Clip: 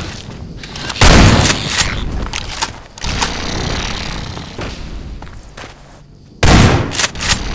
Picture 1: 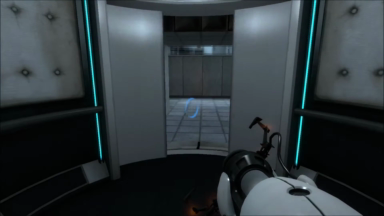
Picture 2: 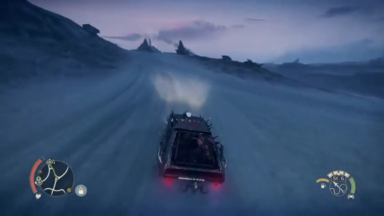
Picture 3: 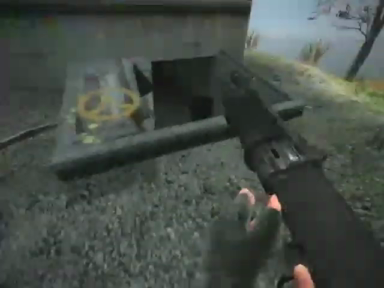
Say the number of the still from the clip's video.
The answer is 3